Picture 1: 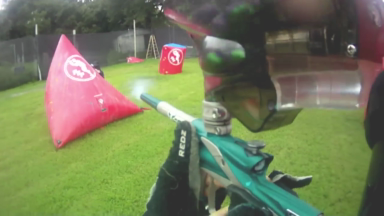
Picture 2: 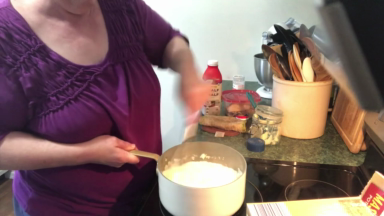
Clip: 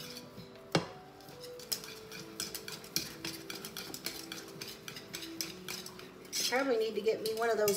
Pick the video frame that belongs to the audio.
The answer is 2